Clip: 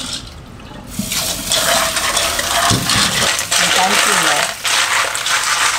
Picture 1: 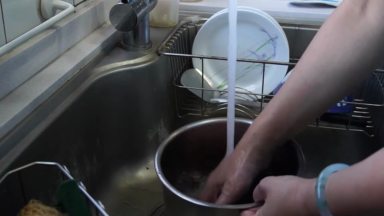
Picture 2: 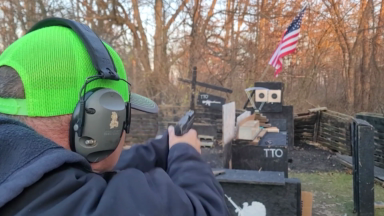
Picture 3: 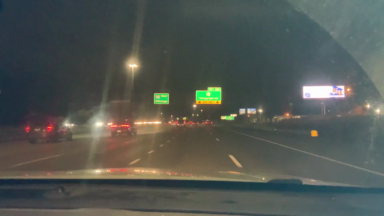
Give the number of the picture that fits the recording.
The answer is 1